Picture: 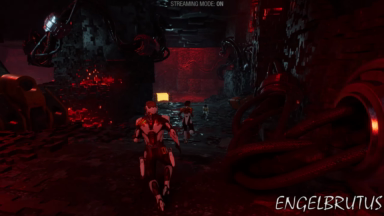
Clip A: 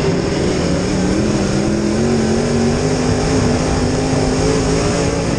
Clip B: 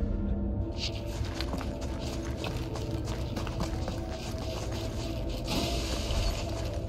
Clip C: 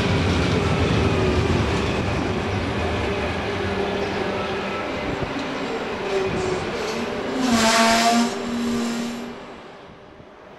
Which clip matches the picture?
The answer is B